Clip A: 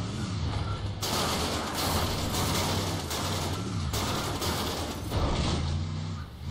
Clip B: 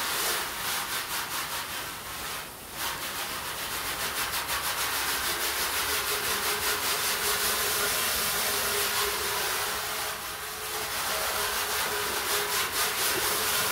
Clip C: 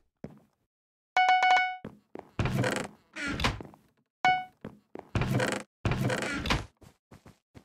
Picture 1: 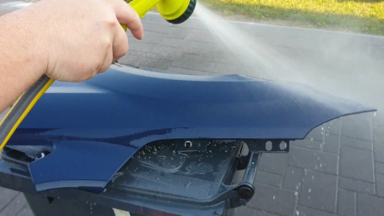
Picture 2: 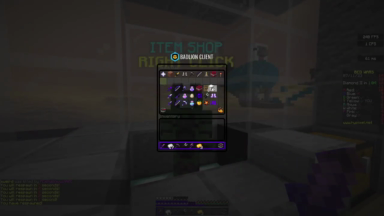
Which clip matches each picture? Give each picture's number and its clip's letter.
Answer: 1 B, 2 C